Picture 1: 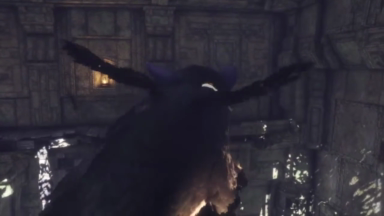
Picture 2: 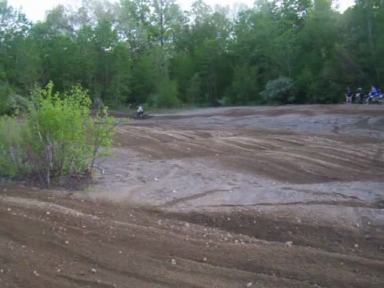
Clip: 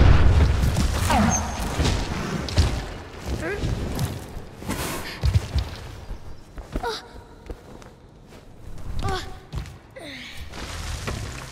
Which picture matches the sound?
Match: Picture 1